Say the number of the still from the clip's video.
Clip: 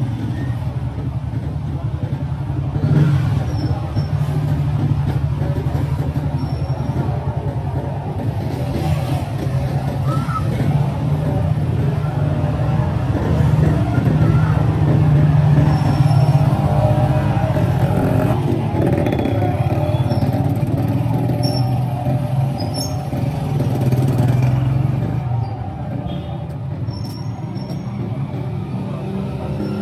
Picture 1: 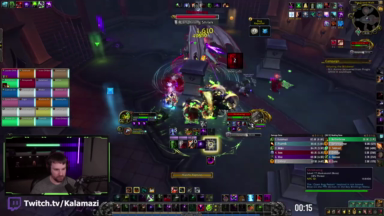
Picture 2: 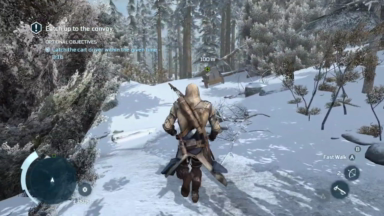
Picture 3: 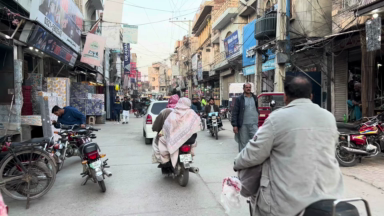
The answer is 3